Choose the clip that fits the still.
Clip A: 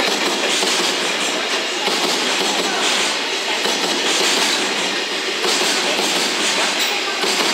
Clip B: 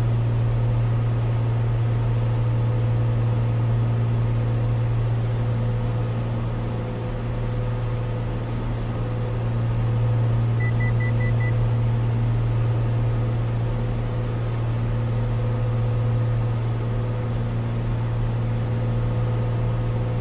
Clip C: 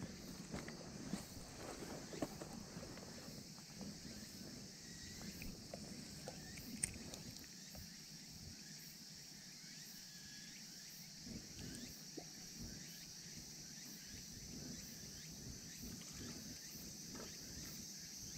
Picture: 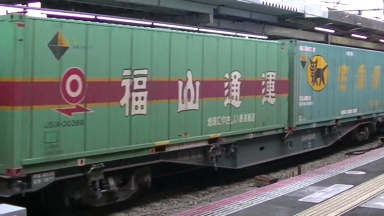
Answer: A